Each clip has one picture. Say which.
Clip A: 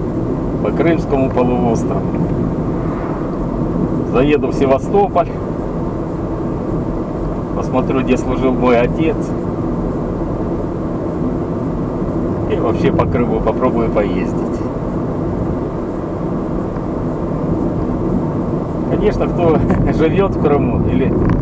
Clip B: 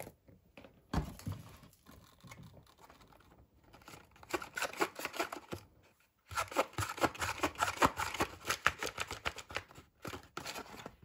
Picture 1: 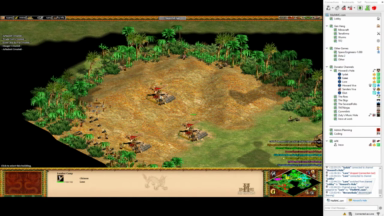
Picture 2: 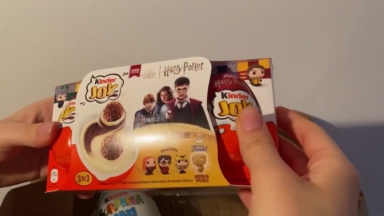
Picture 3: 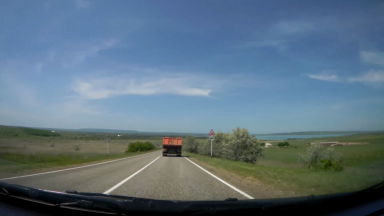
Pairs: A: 3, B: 2